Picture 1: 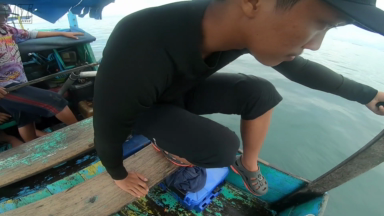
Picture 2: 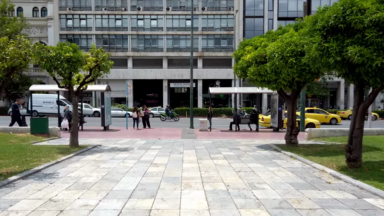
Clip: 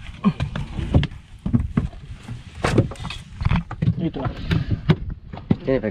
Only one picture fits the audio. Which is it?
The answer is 1